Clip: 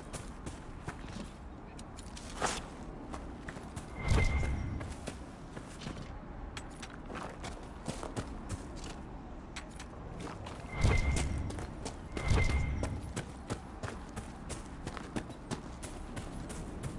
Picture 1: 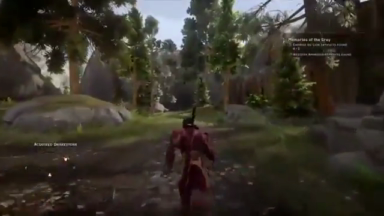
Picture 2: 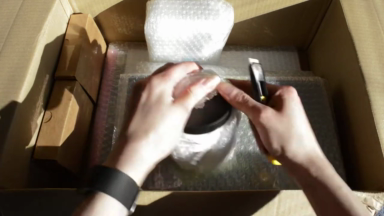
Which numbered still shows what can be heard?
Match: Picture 1